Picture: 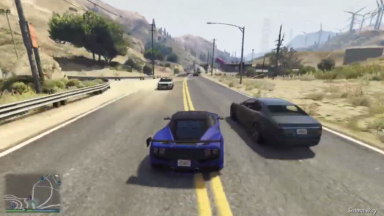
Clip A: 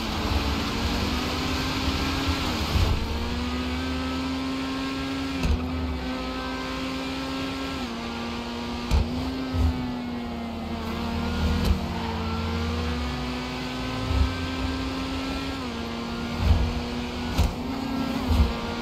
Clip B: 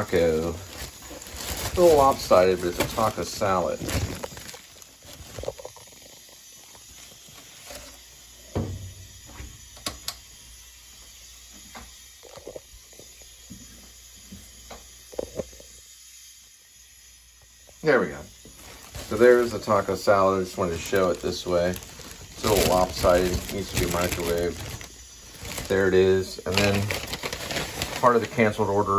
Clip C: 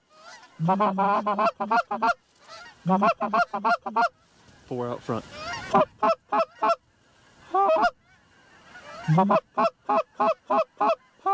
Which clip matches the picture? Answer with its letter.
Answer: A